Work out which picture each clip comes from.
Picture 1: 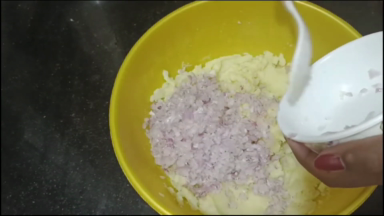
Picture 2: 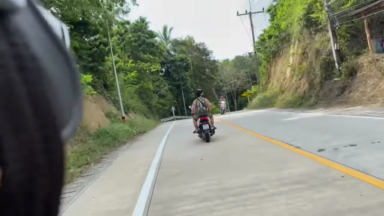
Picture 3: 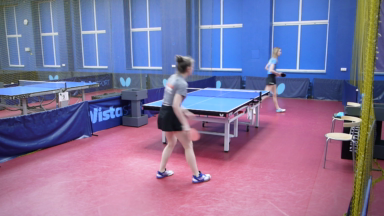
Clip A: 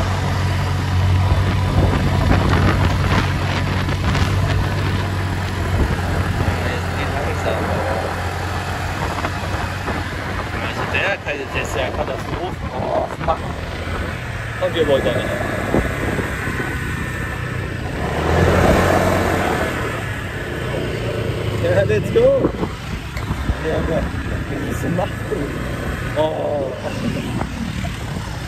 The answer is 2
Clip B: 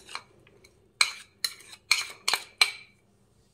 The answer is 1